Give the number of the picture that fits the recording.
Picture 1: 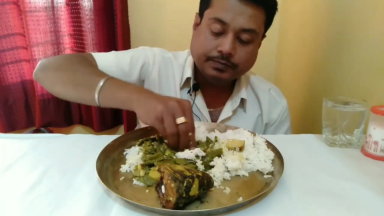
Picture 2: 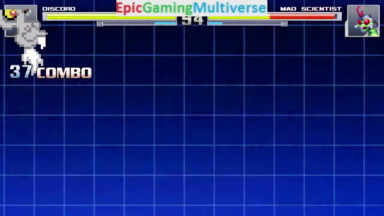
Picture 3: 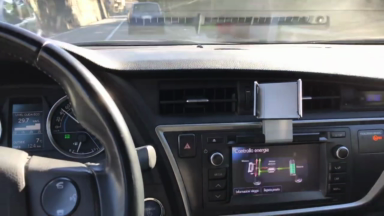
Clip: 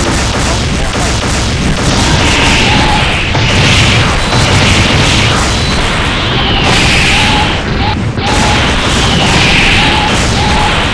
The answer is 2